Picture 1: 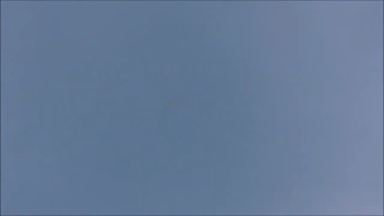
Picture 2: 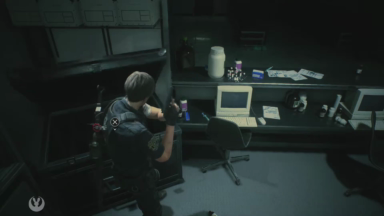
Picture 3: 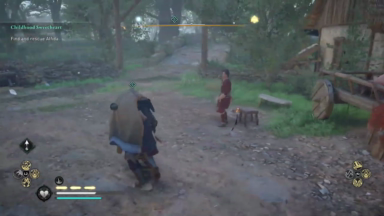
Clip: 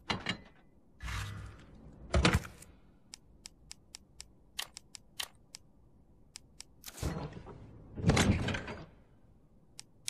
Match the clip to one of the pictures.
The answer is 2